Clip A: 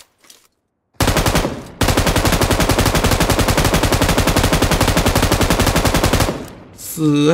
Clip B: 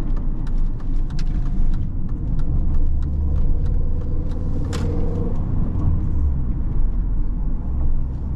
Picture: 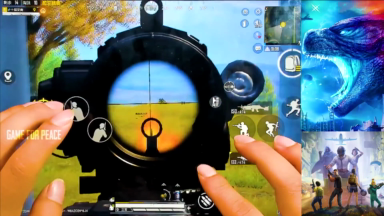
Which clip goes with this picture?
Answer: A